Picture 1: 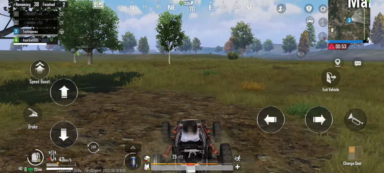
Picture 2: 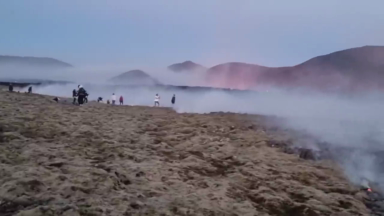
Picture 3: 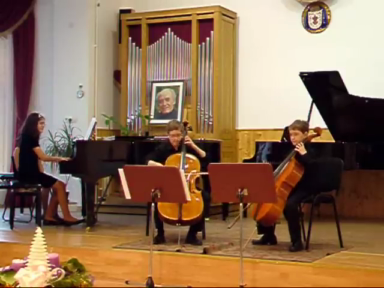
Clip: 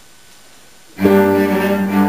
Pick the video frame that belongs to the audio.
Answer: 3